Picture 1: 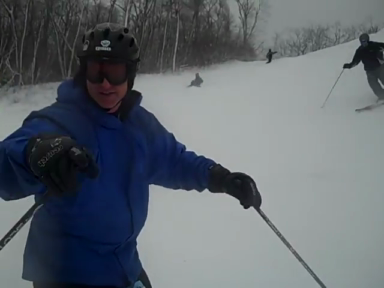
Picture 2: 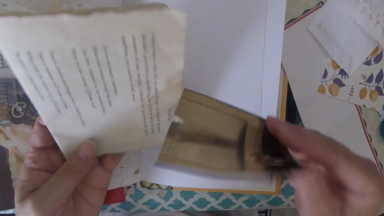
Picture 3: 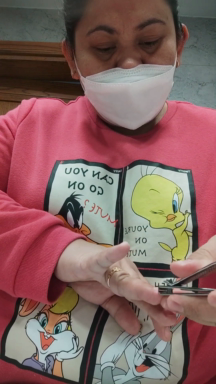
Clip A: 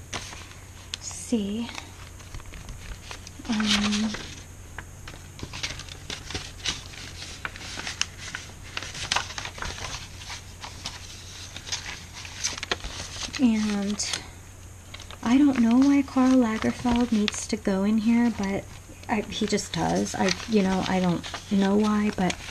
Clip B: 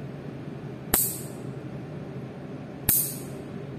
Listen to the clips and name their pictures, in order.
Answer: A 2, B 3